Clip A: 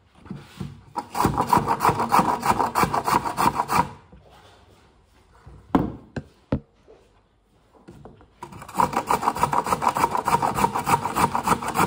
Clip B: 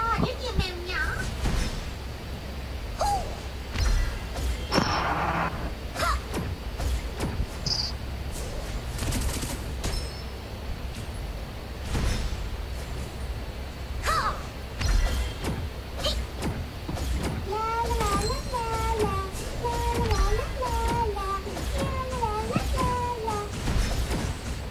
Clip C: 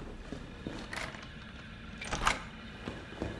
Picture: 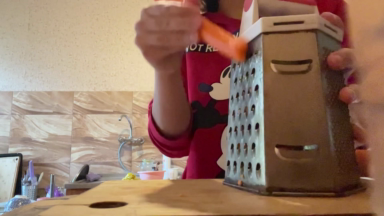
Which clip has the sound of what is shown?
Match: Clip A